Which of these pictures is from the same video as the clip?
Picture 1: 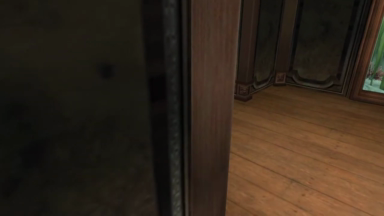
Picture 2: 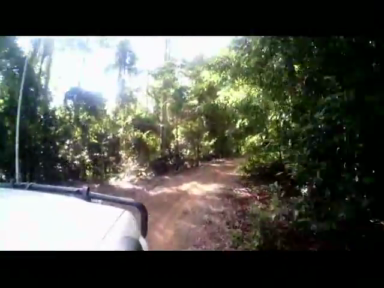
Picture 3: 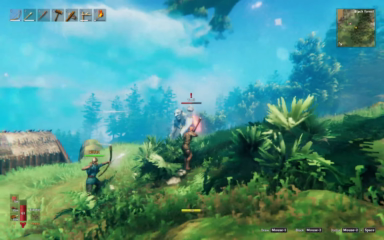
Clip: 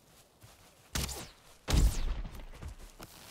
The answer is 3